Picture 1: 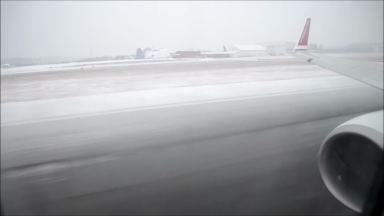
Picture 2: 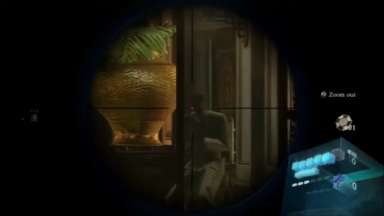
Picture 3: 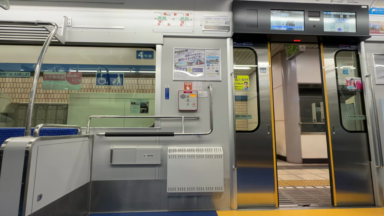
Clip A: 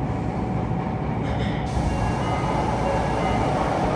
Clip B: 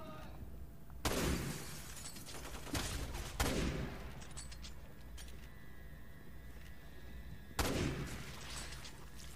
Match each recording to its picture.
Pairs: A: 3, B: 2